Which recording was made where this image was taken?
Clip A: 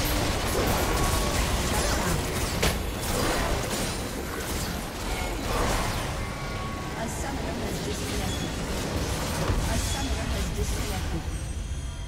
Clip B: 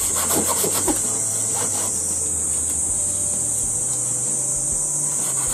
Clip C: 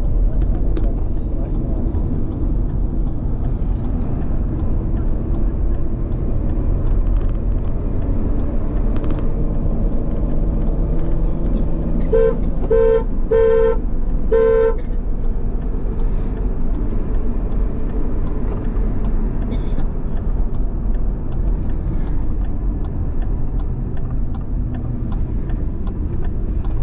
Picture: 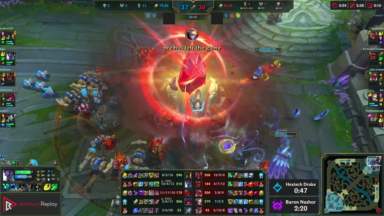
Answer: A